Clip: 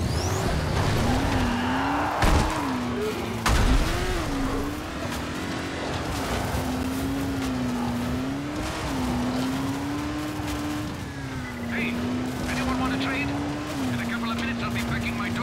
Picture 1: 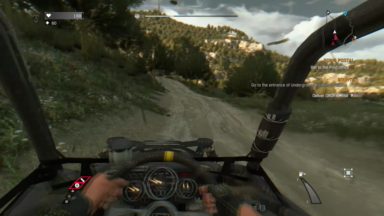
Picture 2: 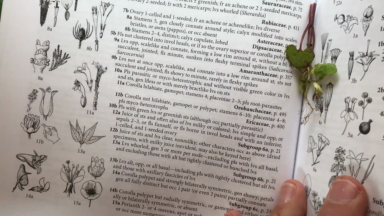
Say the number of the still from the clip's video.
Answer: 1